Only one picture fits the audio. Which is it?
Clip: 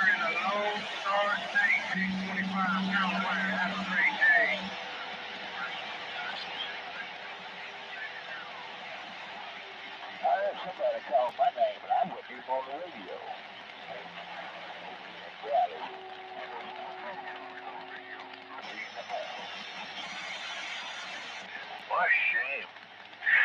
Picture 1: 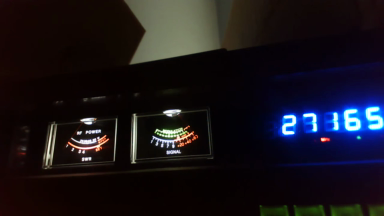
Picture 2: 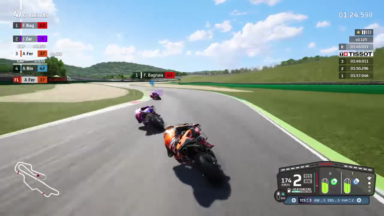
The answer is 1